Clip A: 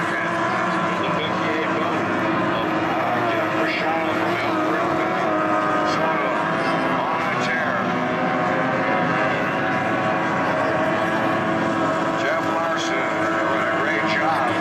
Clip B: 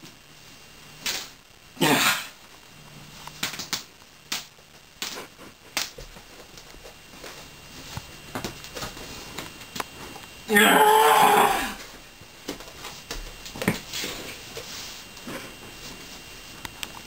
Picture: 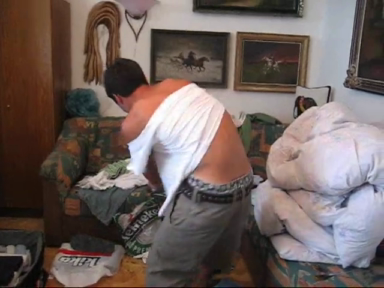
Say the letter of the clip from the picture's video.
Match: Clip B